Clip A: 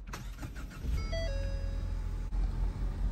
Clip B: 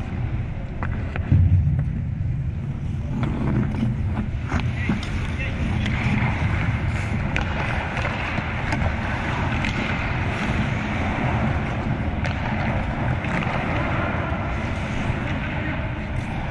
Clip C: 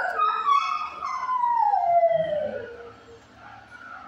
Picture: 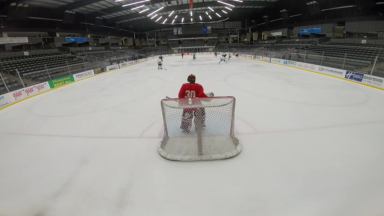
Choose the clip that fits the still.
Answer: B